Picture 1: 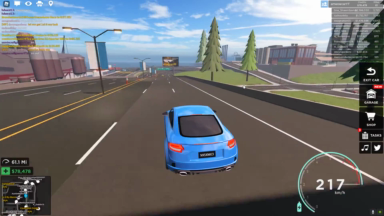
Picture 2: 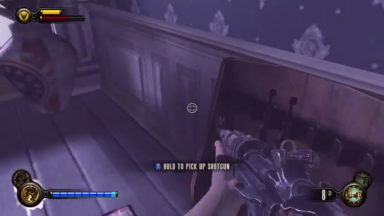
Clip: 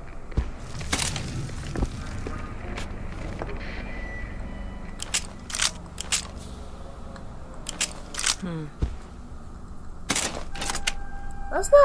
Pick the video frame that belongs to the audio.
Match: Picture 2